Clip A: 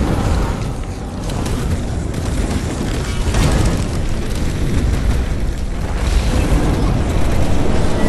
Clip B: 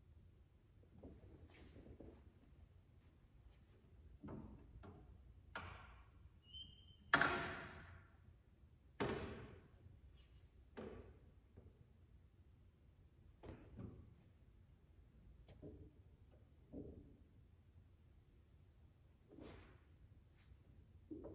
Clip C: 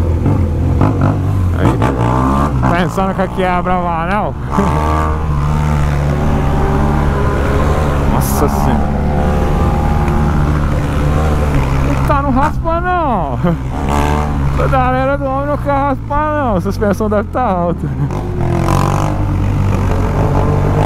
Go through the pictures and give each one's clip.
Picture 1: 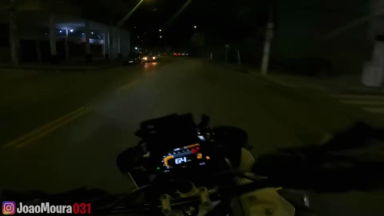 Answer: C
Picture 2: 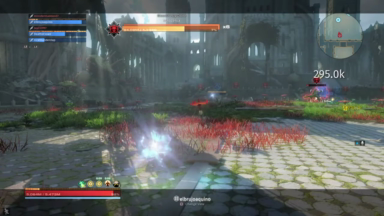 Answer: A